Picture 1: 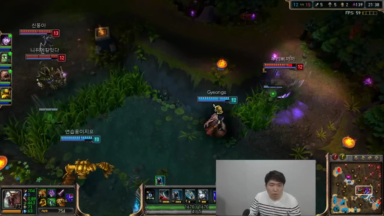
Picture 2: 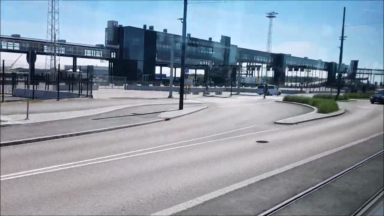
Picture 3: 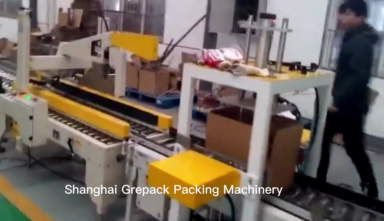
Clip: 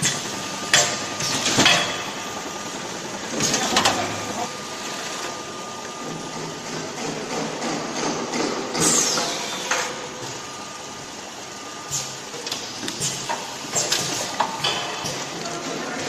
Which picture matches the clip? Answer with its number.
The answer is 3